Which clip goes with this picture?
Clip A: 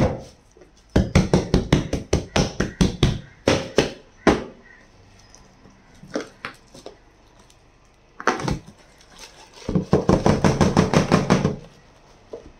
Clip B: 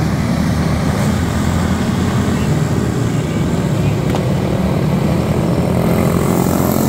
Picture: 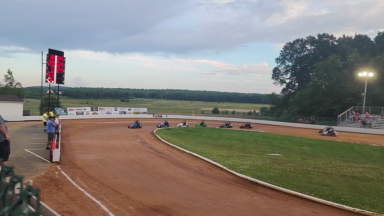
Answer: B